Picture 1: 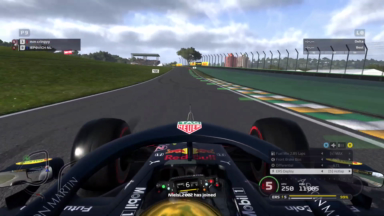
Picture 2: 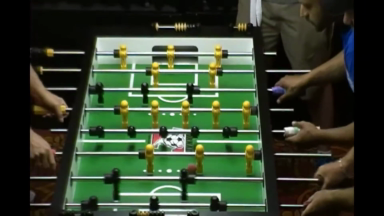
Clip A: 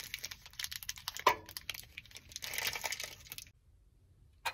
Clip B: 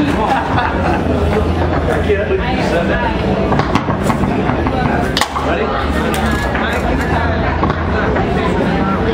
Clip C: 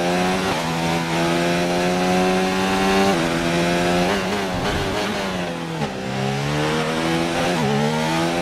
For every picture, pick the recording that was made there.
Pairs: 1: C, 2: B